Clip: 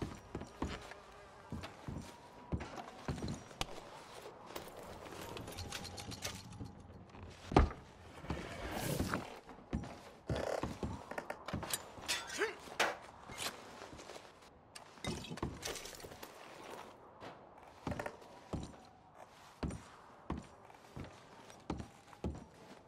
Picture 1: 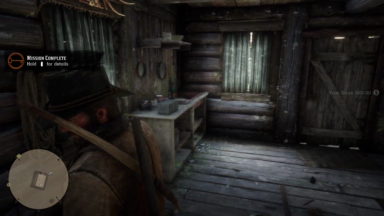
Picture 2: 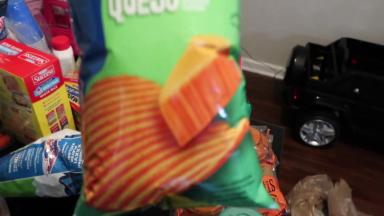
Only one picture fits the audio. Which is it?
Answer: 1